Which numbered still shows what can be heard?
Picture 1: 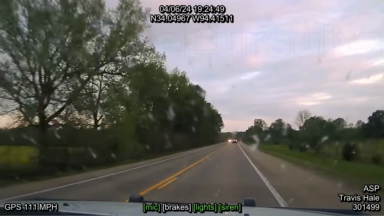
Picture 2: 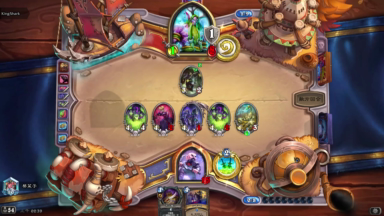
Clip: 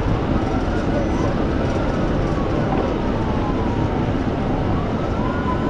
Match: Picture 1